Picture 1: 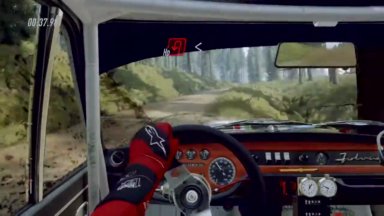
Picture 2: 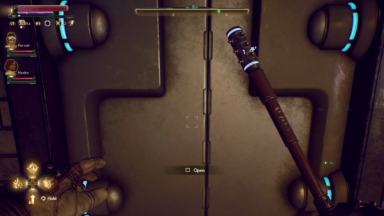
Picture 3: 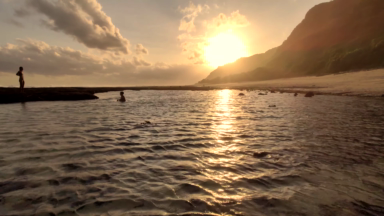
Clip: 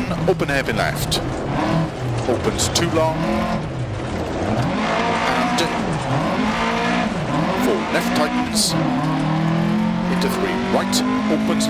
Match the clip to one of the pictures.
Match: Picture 1